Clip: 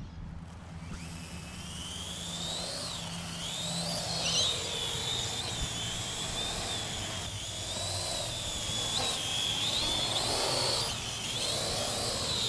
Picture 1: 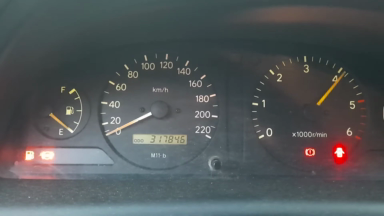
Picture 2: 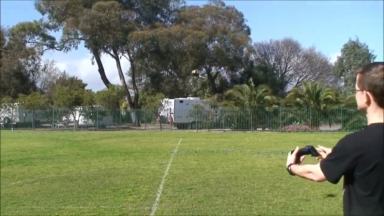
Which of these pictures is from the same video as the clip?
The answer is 2